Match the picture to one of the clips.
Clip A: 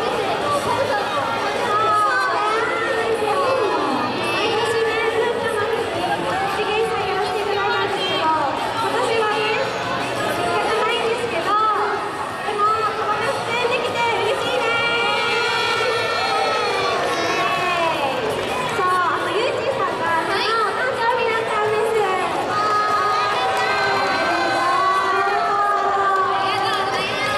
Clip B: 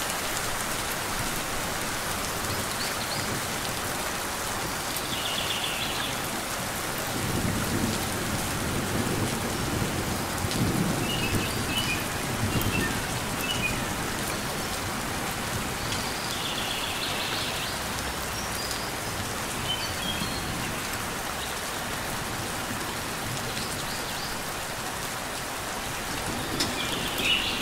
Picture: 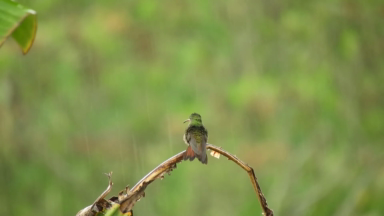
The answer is B